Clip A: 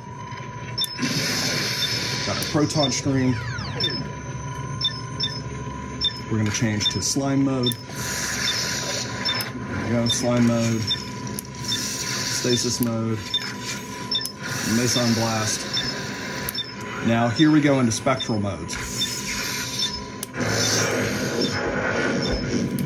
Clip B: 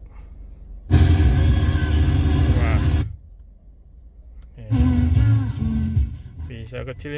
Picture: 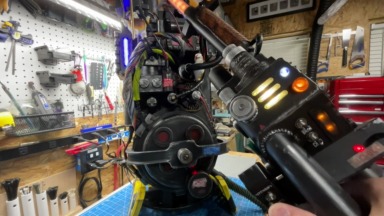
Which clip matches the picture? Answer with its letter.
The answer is A